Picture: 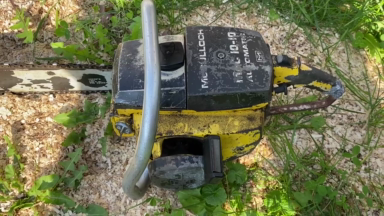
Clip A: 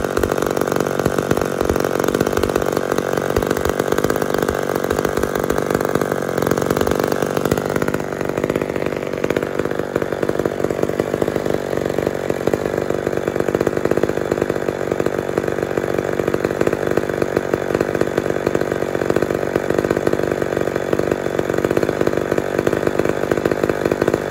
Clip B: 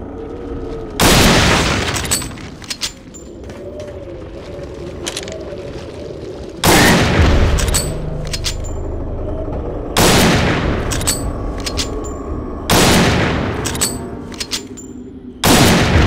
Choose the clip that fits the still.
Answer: A